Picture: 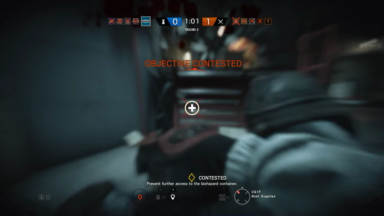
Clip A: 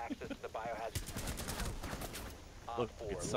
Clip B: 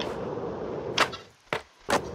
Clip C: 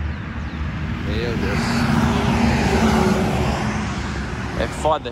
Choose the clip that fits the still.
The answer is A